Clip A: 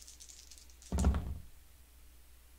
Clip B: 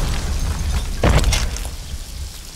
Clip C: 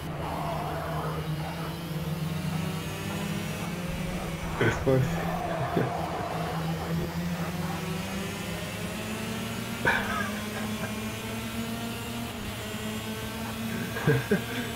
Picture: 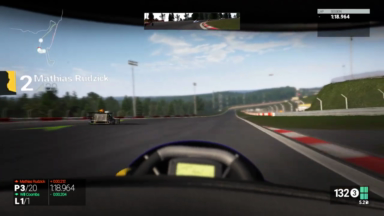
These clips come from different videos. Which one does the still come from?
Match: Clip C